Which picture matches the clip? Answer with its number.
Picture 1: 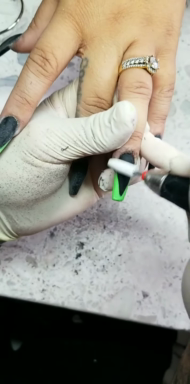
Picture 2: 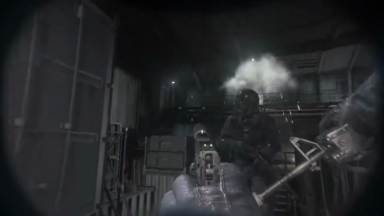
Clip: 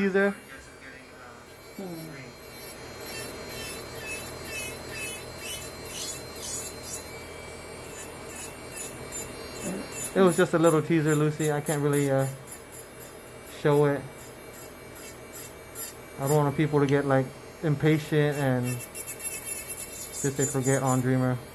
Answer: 1